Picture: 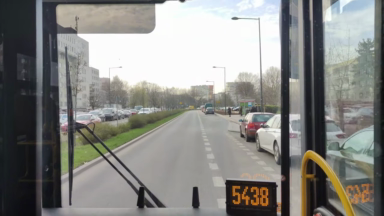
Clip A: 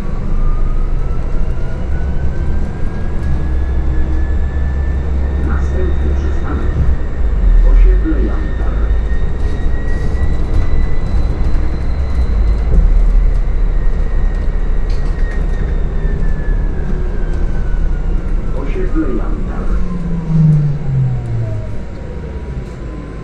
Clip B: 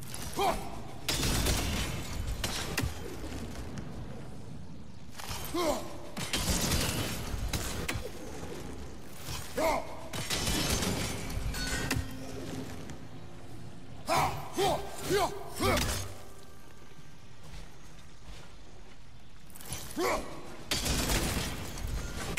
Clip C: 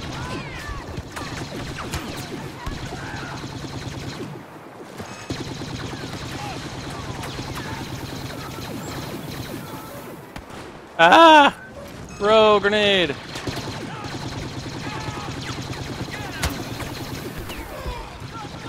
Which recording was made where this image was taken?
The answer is A